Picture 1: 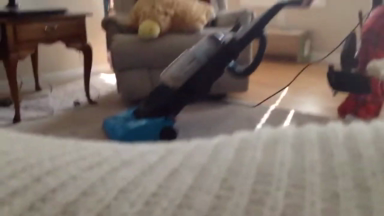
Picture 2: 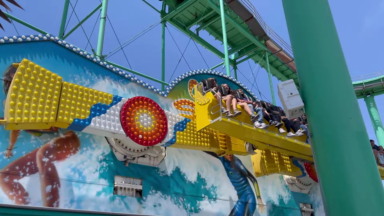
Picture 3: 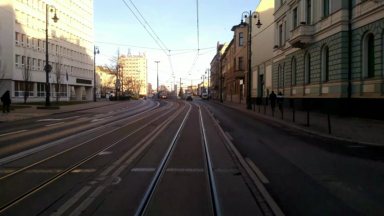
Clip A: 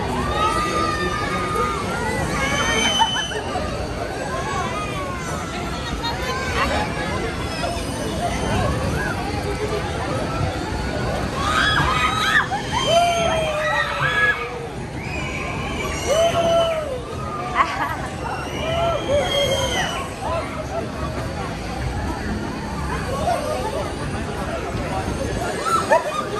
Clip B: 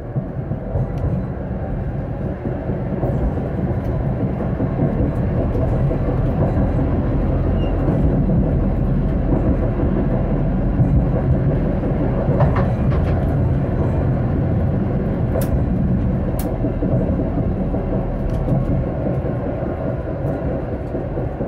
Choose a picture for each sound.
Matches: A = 2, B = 3